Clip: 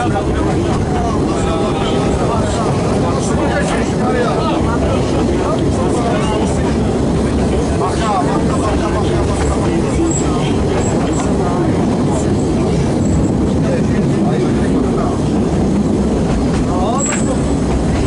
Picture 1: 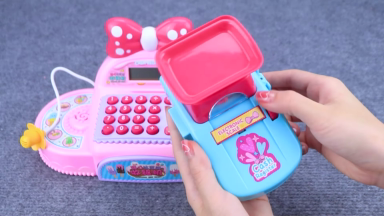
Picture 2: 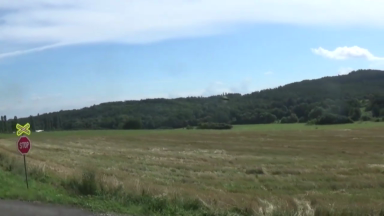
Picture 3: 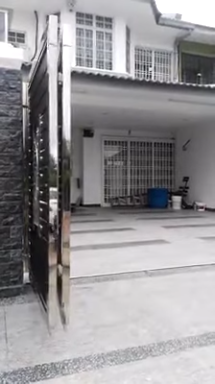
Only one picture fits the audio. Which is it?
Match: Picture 2